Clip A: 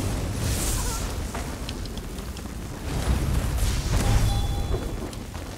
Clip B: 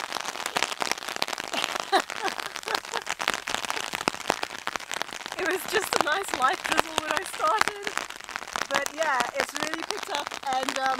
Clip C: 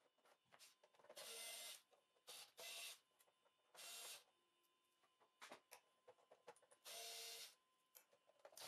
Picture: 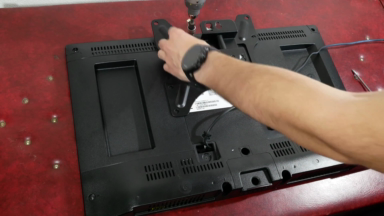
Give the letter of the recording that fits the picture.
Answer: C